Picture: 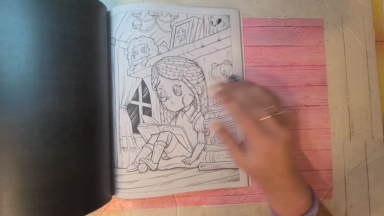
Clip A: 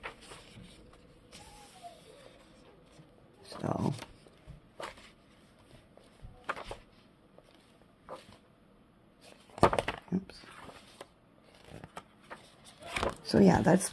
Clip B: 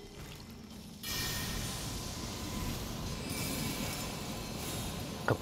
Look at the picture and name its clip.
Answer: A